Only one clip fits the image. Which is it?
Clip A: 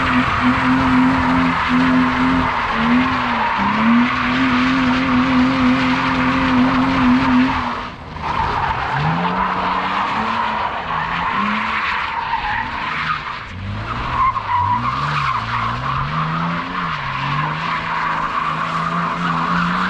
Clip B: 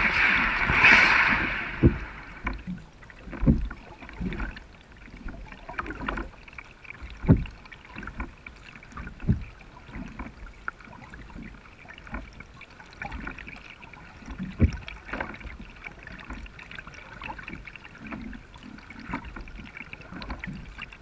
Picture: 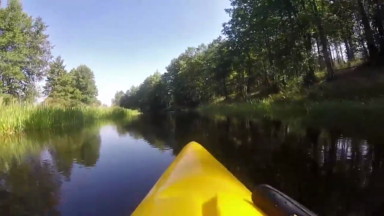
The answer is B